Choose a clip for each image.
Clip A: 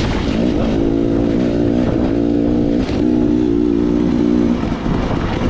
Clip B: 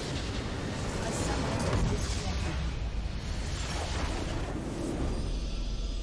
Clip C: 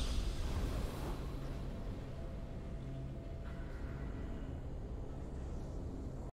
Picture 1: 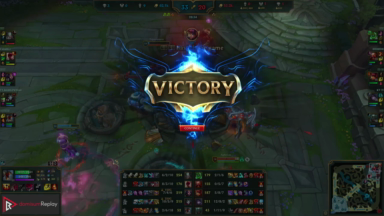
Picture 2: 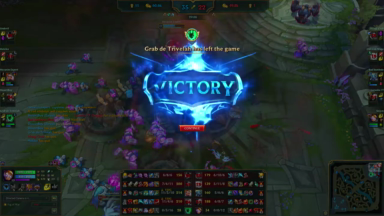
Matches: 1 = C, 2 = B